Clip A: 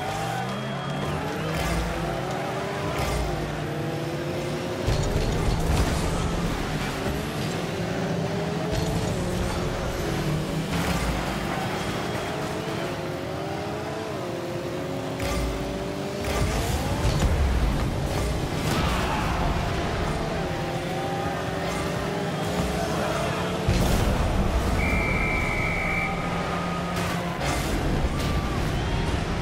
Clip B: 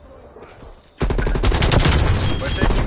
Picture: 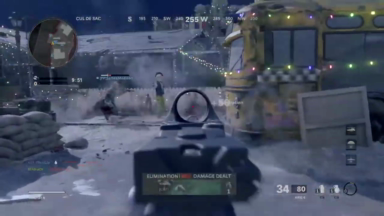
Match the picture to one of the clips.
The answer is B